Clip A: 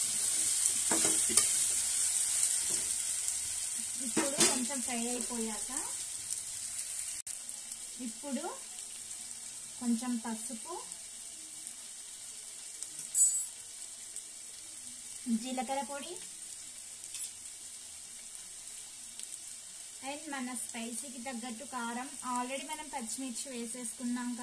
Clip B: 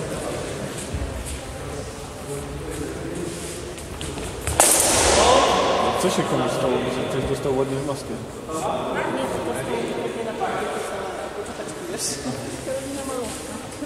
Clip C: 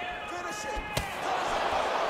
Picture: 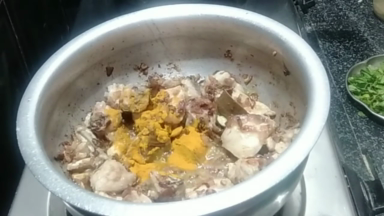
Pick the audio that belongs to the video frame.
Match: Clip A